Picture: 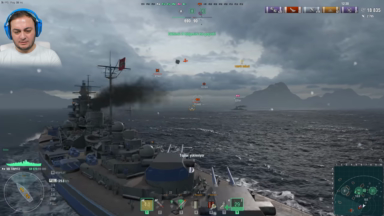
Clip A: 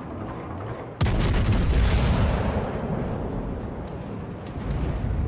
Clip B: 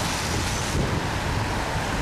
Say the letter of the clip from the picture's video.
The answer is A